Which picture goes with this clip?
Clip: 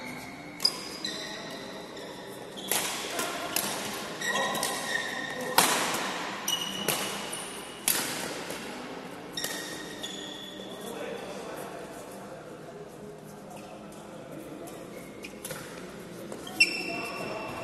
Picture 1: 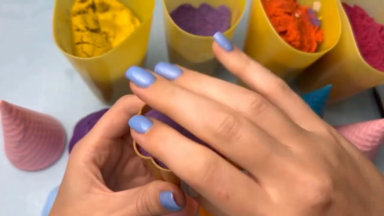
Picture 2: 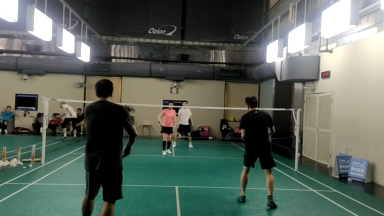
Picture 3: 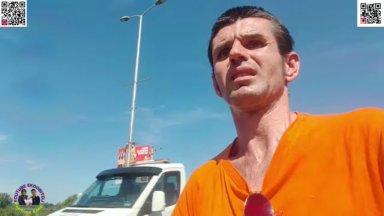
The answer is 2